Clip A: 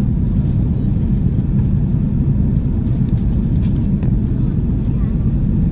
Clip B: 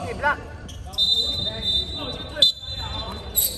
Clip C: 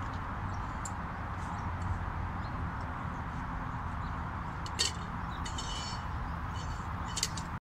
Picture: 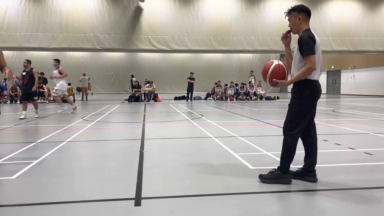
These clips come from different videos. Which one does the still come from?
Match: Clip B